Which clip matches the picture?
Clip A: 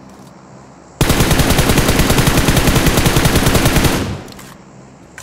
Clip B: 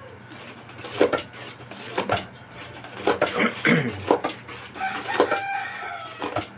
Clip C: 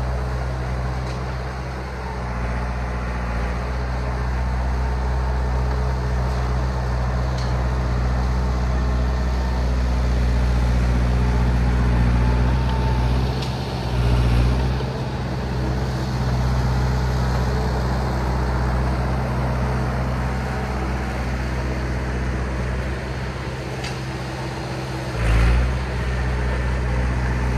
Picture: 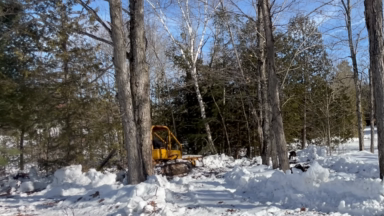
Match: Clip C